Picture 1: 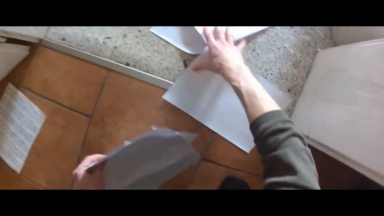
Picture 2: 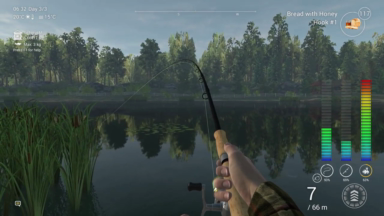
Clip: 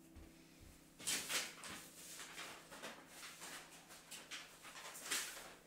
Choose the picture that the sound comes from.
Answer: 1